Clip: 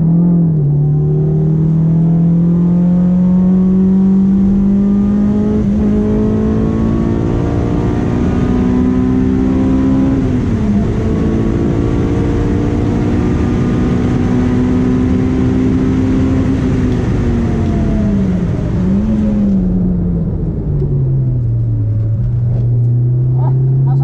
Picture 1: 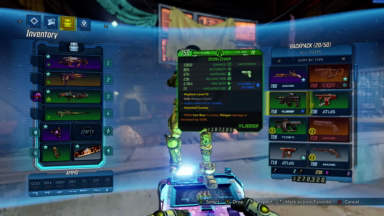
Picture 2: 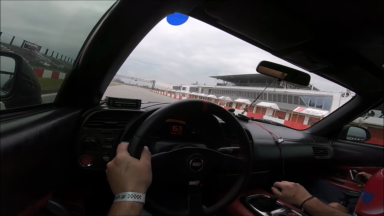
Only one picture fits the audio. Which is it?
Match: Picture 2